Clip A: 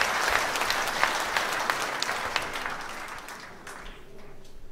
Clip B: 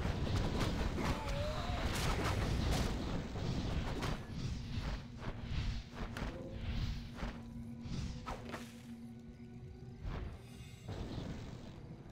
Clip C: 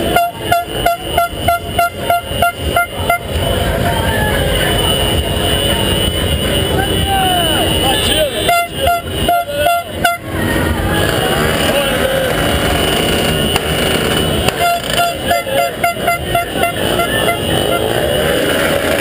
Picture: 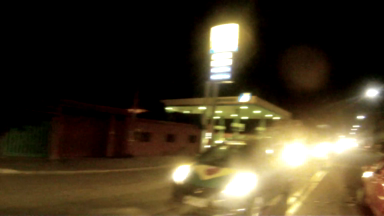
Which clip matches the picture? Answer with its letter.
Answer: C